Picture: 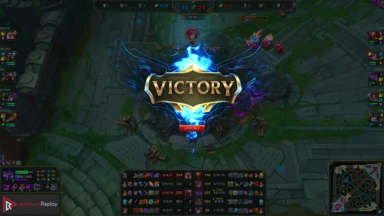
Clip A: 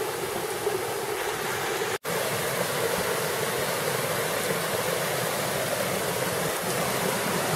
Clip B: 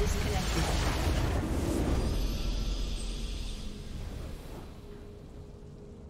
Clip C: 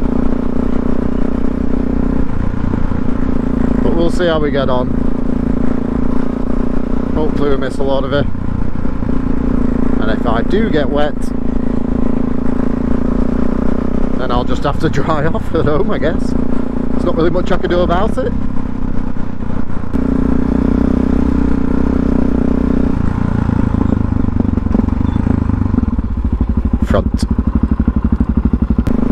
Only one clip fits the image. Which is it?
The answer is B